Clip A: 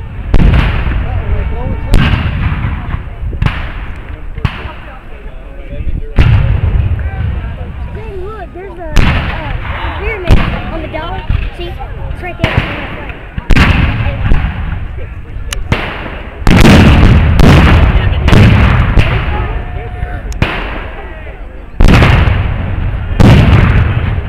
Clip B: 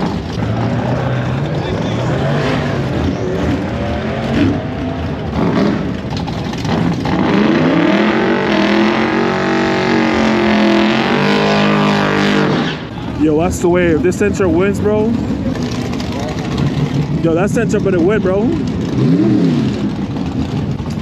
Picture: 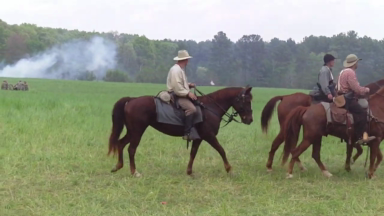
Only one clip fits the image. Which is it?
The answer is A